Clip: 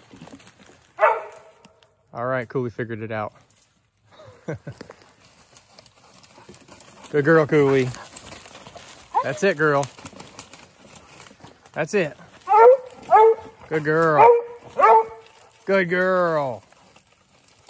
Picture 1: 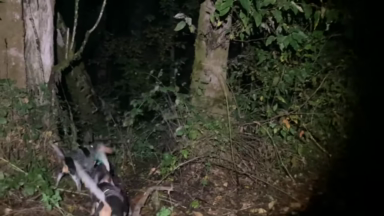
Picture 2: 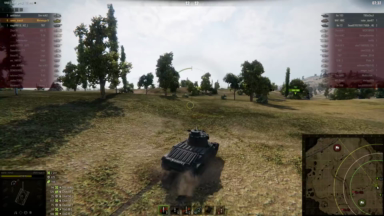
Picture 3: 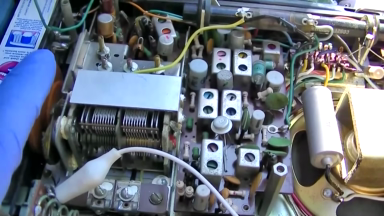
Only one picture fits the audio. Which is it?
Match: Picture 1